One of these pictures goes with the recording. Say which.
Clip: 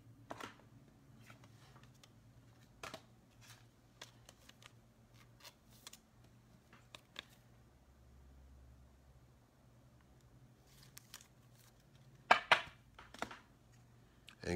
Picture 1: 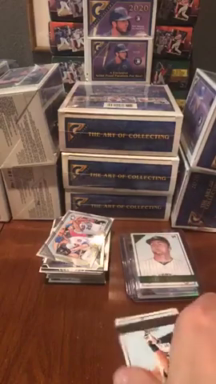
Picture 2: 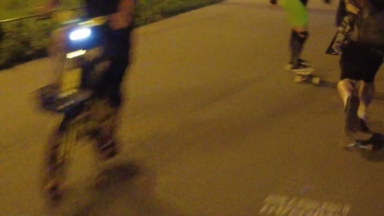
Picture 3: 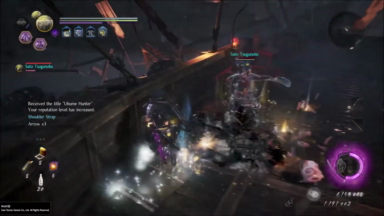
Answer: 1